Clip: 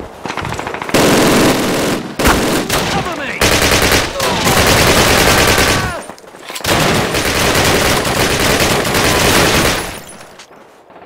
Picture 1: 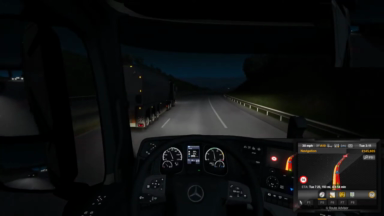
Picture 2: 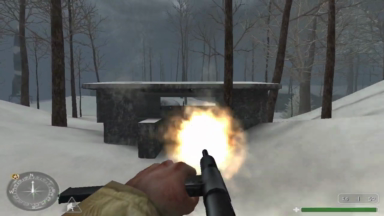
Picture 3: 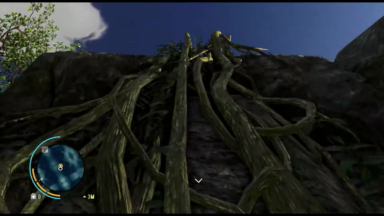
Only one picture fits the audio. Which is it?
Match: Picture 2